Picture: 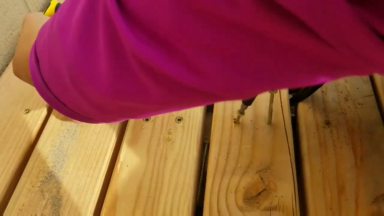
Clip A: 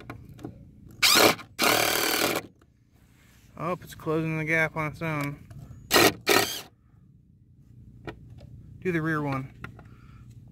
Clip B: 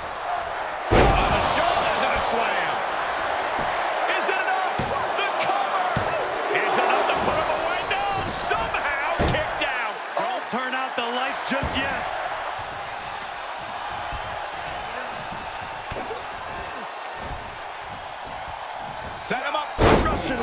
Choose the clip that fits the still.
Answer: A